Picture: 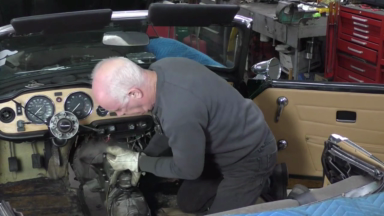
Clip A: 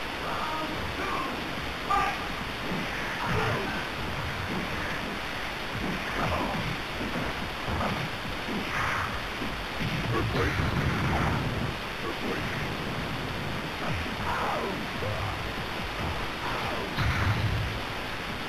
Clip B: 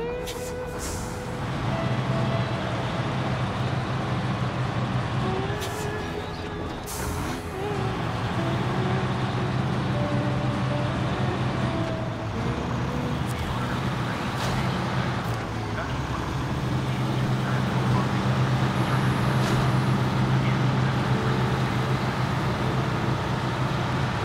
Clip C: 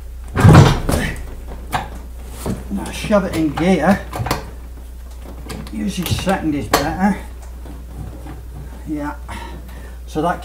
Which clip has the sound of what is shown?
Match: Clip C